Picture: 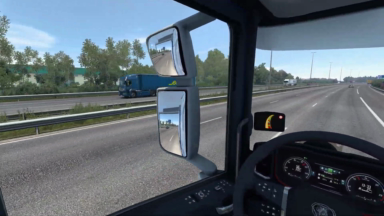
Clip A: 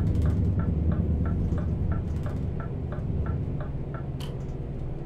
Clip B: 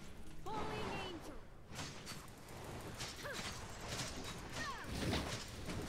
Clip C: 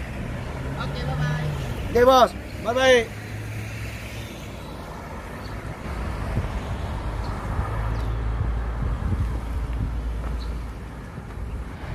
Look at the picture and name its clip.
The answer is A